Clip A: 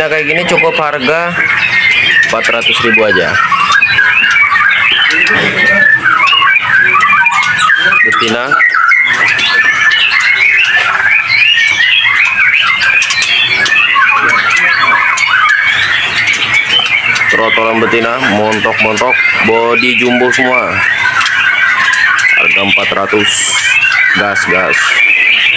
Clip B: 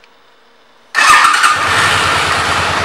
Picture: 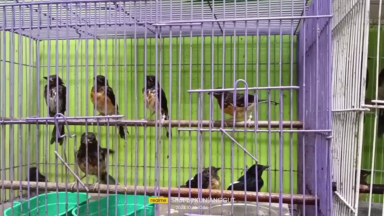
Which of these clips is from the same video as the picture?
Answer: A